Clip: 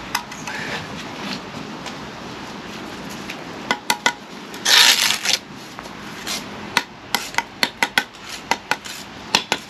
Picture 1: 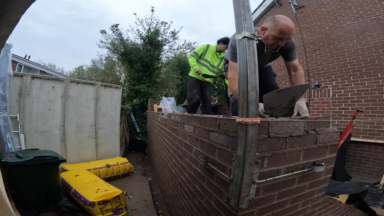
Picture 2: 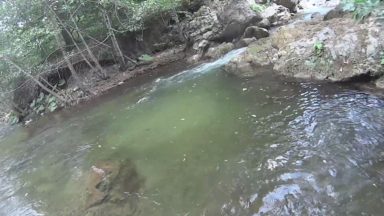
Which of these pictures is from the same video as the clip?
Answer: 1